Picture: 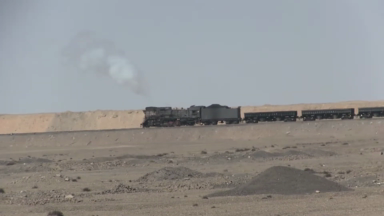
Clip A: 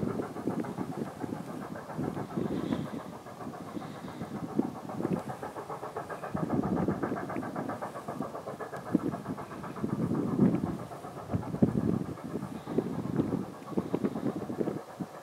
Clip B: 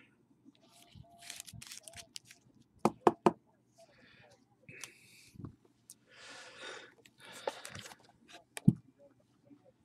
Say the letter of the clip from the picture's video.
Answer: A